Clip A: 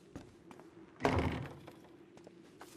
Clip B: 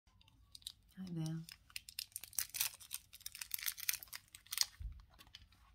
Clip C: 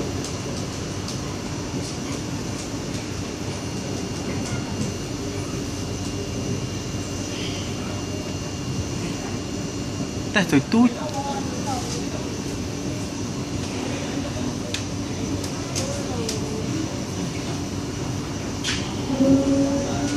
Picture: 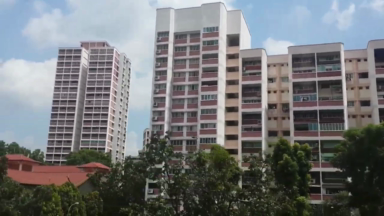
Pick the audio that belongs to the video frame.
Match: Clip C